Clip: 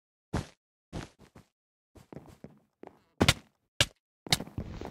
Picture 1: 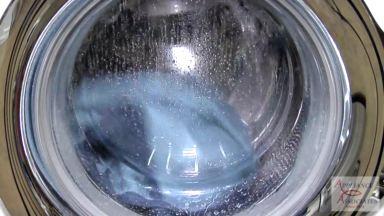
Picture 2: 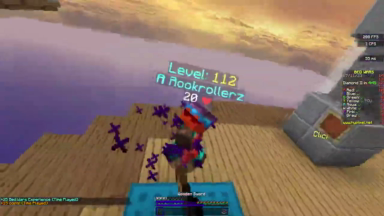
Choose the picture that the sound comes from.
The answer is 2